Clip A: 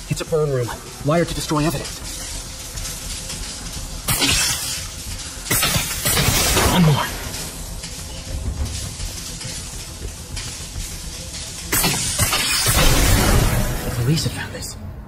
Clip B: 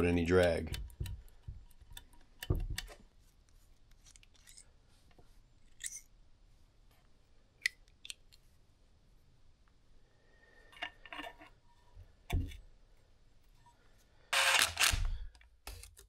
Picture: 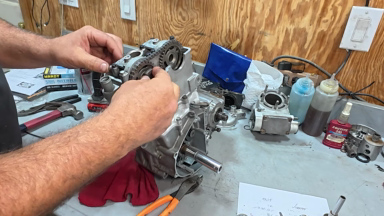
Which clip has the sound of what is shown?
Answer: B